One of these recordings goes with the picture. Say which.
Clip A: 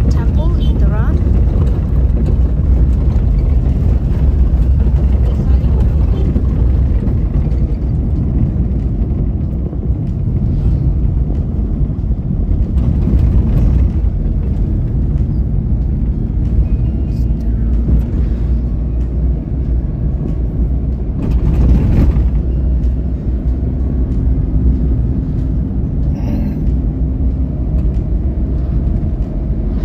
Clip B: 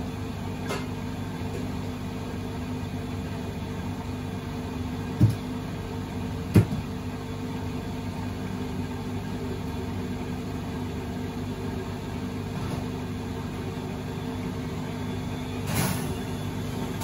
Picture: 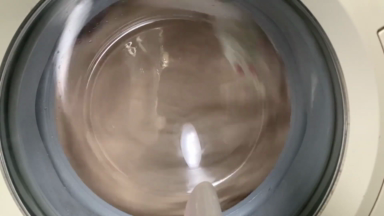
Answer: B